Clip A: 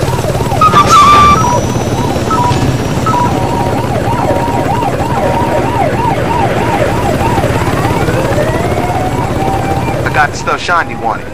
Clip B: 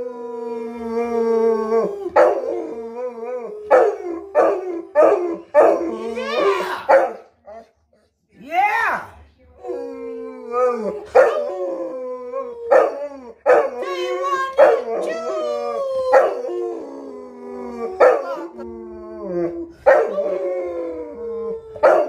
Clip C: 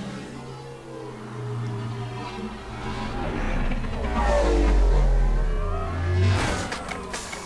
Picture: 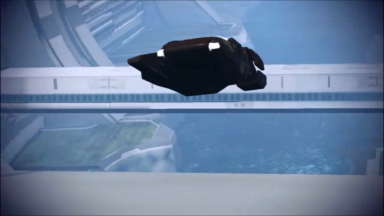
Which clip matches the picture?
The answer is C